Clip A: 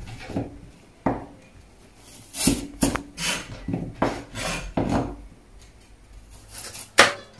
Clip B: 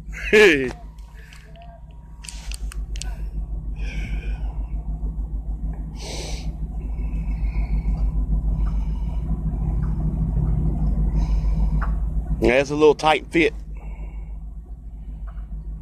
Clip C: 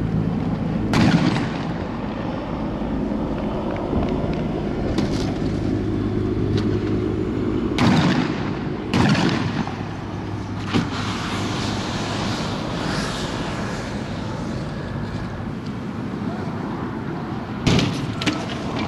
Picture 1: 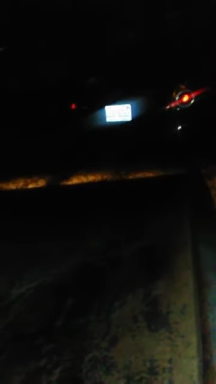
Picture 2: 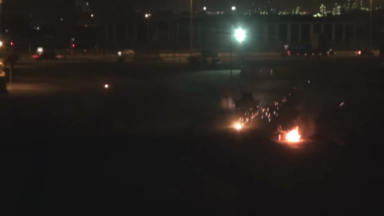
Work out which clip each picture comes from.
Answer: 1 B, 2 C